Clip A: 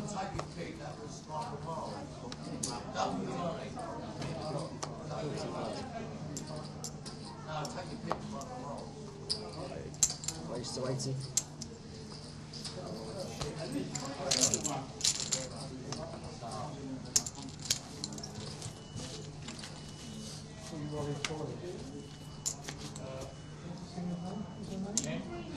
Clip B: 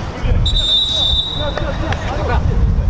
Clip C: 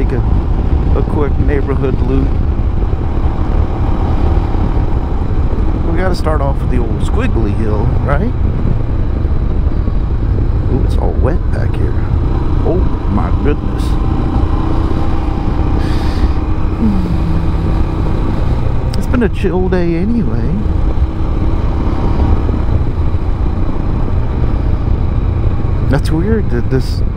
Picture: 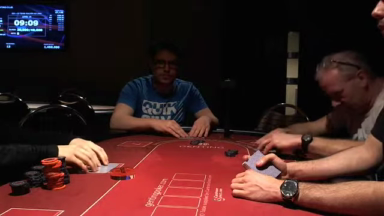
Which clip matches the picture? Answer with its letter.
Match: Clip A